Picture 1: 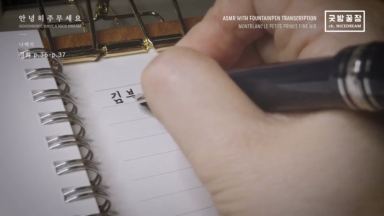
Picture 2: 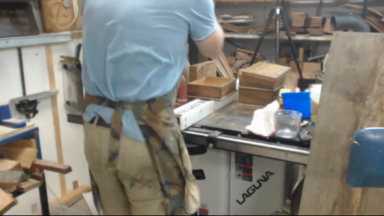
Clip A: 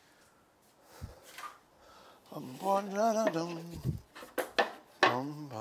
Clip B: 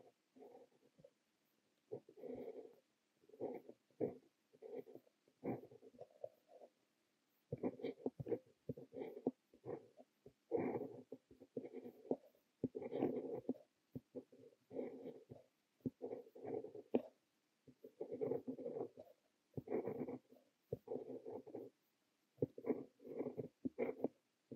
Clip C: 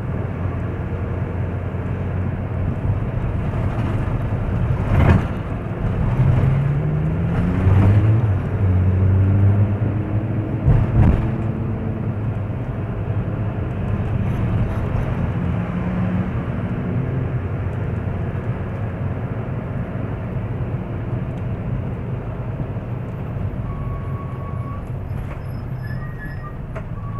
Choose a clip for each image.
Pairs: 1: B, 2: A